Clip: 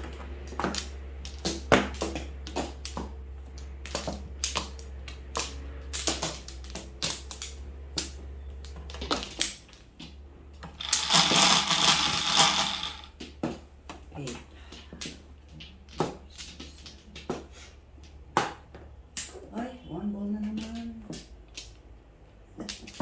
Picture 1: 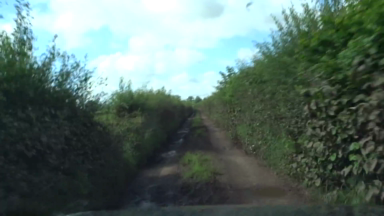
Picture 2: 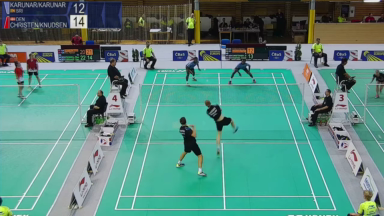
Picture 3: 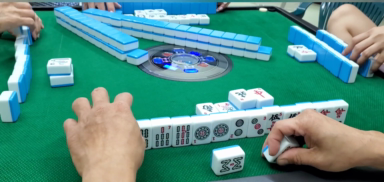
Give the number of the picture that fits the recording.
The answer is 3